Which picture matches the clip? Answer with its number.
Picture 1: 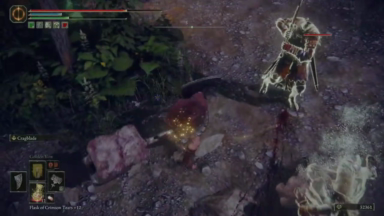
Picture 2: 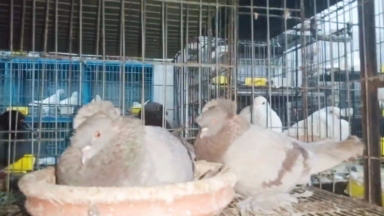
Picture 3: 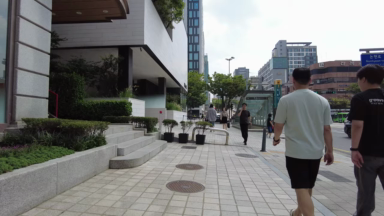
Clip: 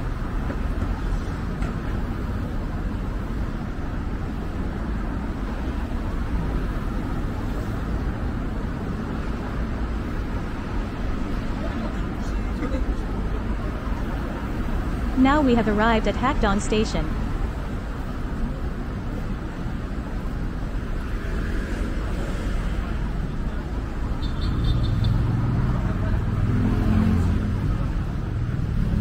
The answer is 3